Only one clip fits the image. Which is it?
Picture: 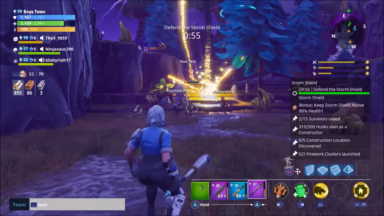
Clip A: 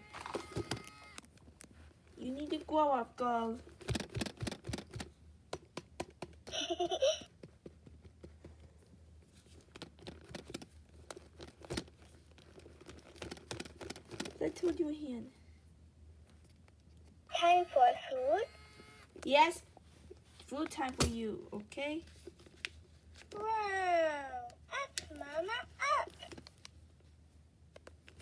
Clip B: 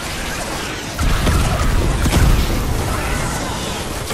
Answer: B